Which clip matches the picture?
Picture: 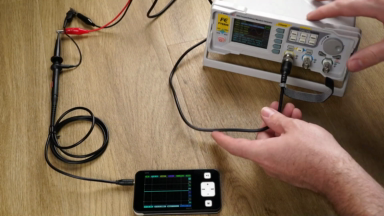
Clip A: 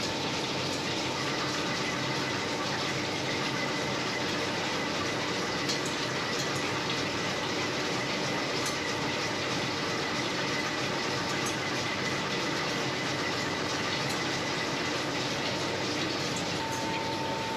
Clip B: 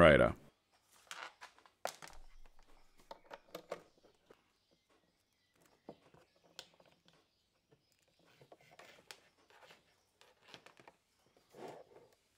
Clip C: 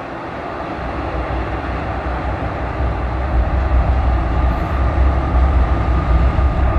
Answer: B